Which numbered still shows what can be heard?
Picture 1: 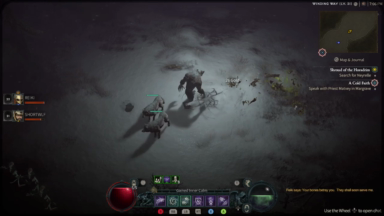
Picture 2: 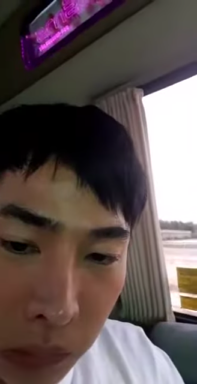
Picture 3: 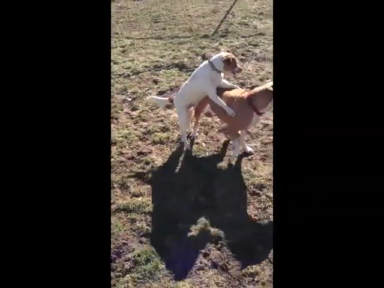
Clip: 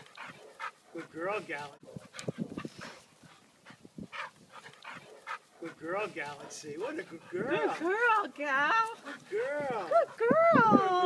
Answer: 3